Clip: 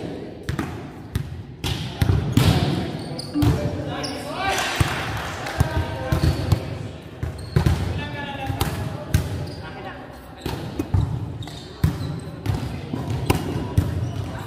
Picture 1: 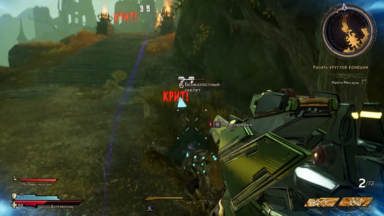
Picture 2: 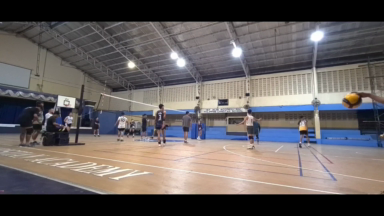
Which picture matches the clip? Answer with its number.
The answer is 2